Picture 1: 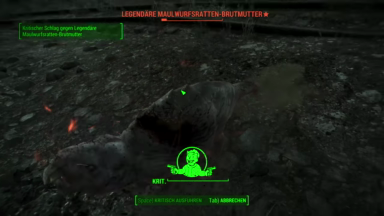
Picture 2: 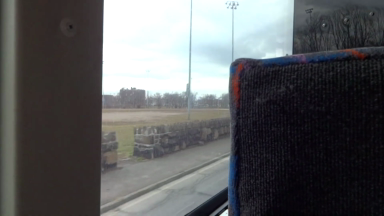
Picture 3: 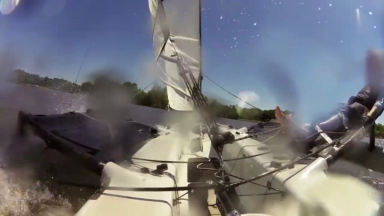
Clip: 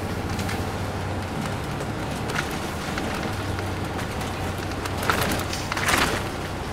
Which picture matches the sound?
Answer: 2